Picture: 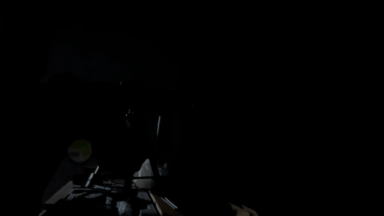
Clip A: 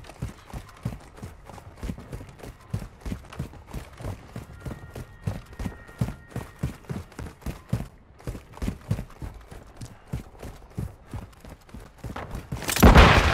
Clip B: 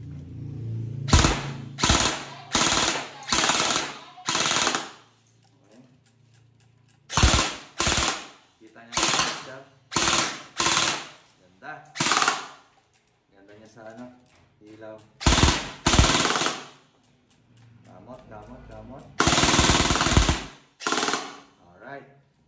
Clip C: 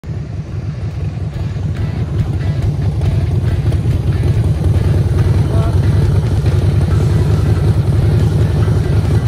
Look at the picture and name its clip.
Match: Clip B